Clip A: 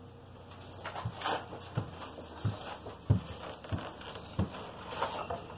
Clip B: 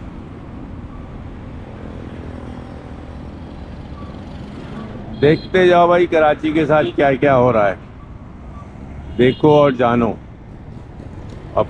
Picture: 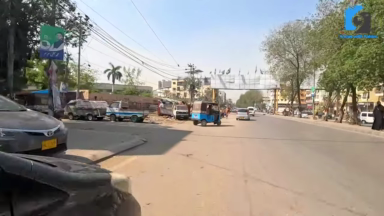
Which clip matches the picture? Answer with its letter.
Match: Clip B